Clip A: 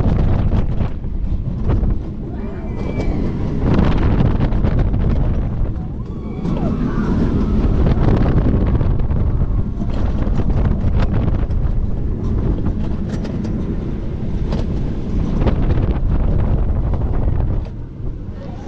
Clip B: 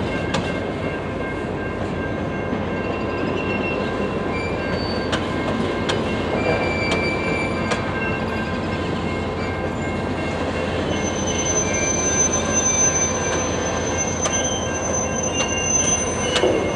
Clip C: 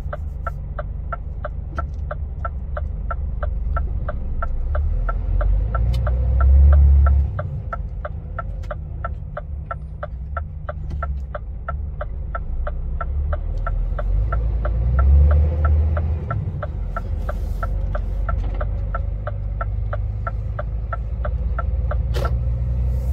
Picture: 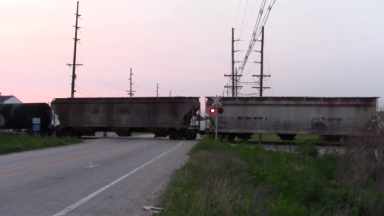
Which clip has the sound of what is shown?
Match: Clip B